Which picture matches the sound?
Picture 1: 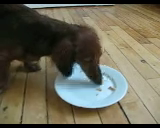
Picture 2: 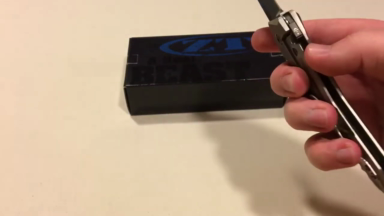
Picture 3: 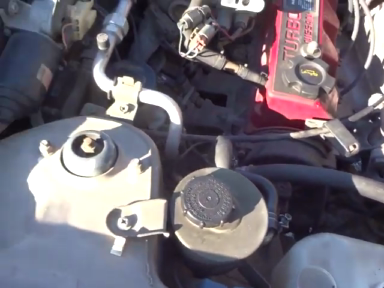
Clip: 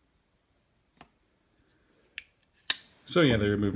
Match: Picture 2